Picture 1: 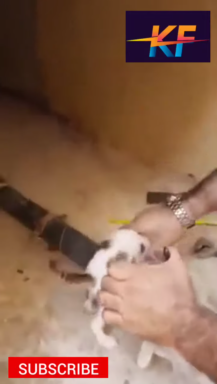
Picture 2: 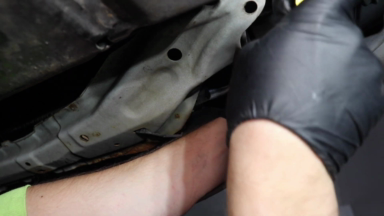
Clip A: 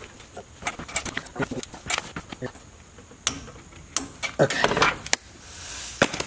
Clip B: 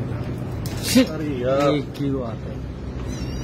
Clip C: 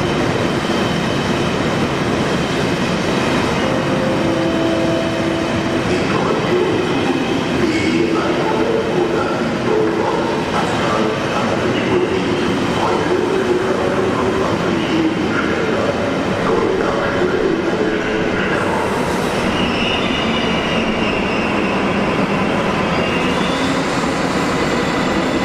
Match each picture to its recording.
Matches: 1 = B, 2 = A